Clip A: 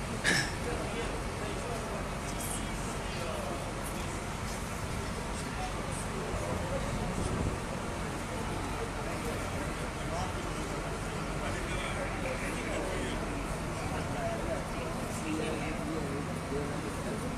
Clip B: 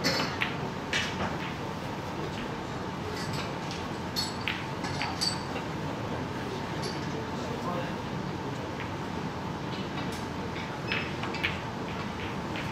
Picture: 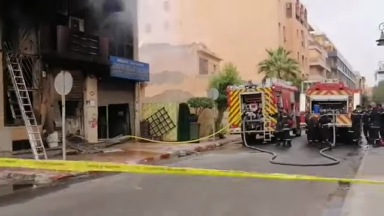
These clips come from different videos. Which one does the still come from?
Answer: A